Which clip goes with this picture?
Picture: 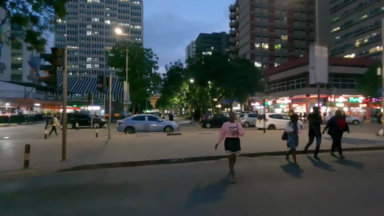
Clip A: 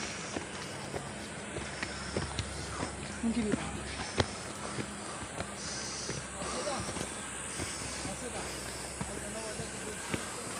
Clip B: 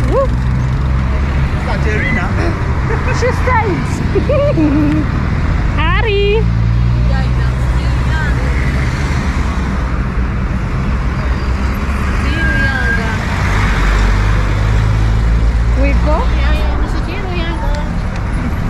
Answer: B